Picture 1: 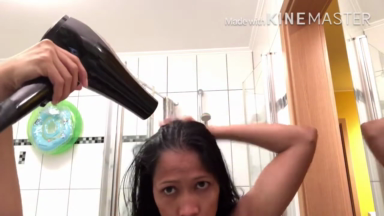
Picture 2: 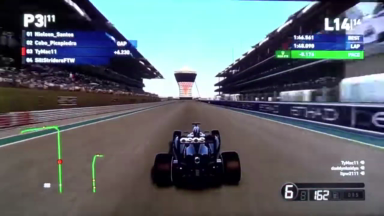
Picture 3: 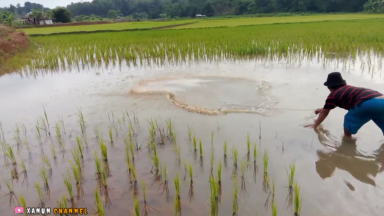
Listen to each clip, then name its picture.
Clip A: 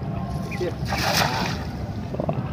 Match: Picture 3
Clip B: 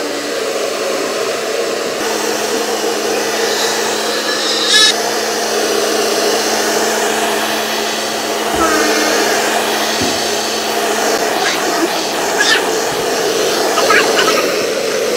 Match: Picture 1